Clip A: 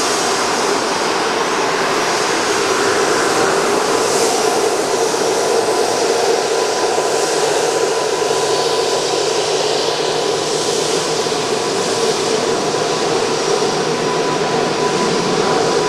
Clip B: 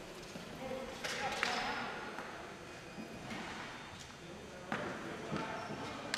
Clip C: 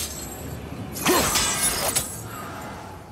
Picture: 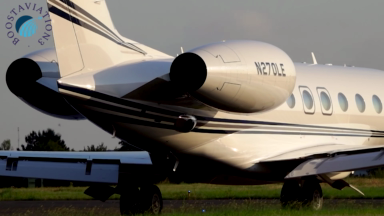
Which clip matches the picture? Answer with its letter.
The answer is A